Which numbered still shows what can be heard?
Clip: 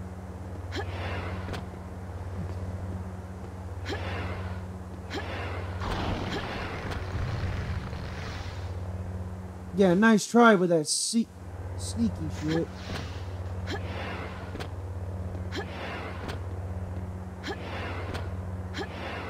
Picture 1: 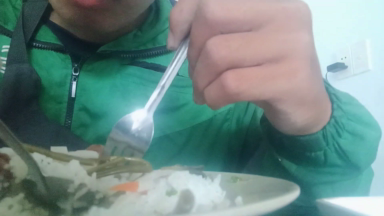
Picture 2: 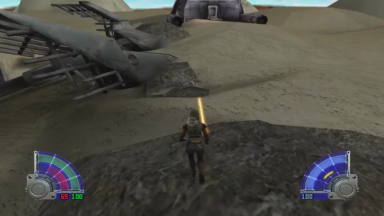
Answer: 2